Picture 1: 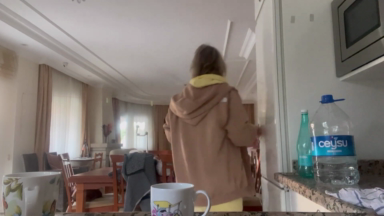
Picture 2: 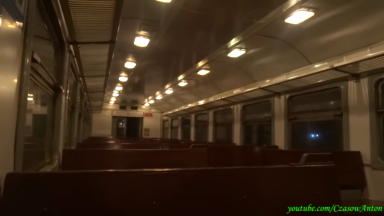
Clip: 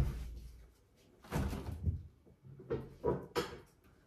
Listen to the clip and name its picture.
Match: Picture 1